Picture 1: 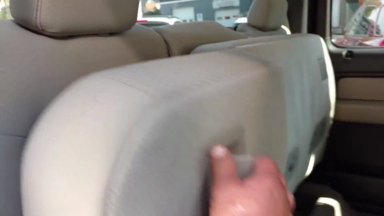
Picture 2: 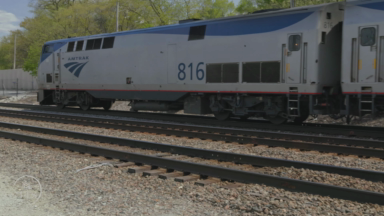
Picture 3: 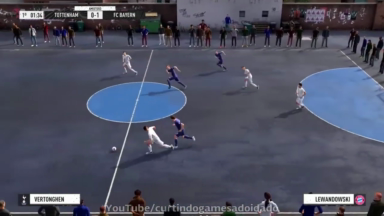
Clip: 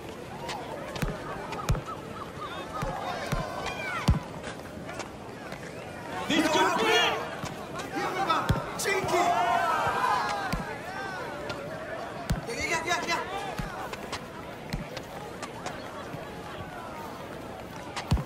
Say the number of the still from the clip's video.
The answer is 3